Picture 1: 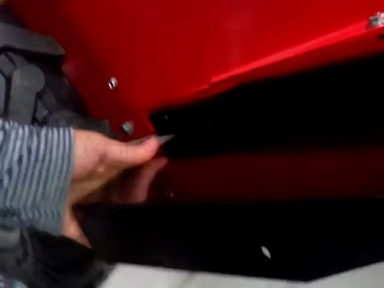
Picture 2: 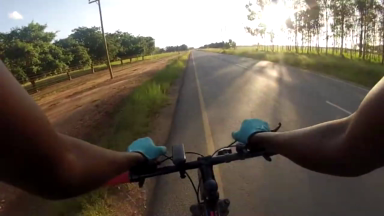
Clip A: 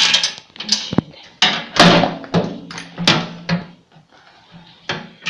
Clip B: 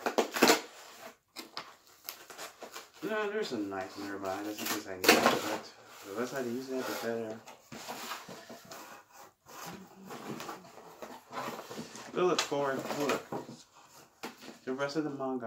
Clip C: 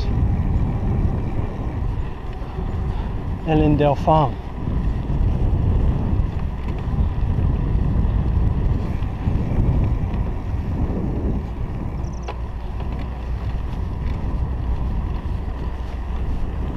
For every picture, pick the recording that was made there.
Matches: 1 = A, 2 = C